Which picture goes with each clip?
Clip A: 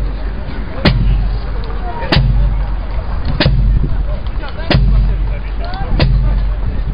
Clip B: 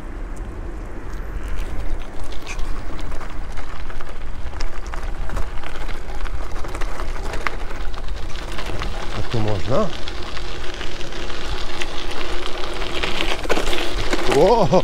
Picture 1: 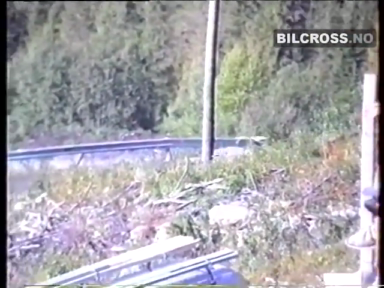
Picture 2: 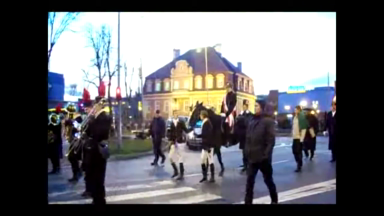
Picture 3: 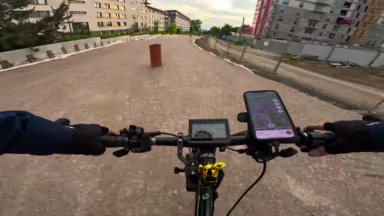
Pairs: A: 2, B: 3